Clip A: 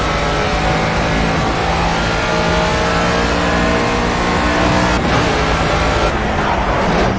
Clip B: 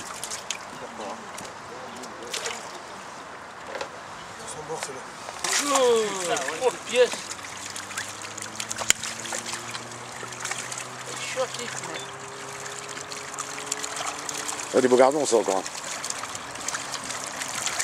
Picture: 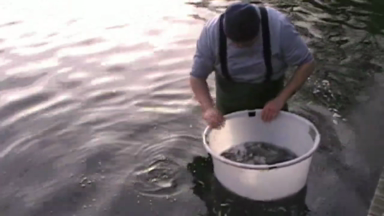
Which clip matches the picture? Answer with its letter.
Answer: B